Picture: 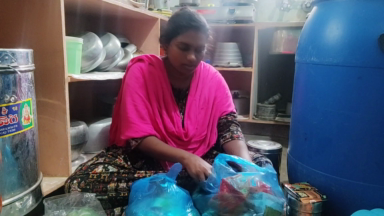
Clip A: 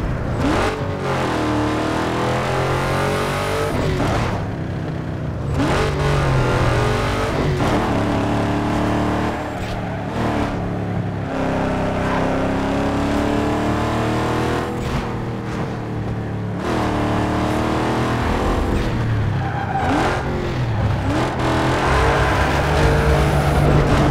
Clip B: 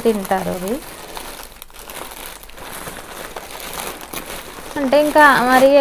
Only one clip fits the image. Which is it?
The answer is B